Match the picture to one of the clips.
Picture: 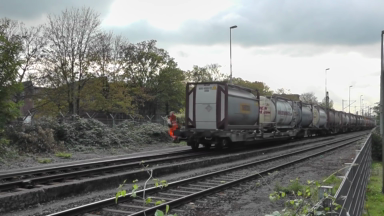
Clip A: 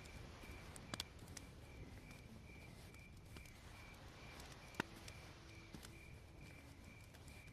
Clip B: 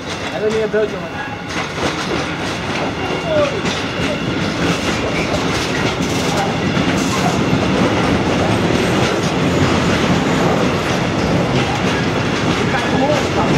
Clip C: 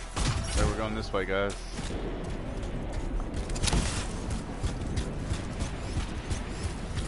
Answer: B